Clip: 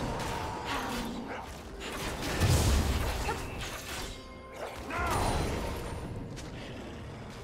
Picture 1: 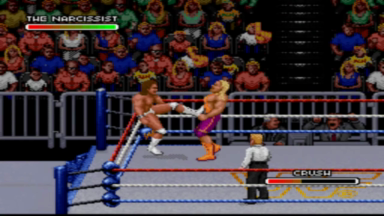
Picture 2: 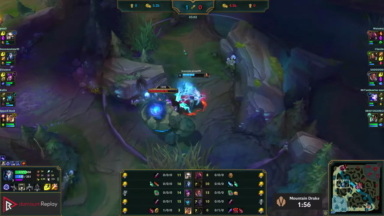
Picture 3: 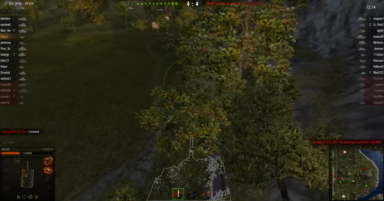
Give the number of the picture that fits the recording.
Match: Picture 2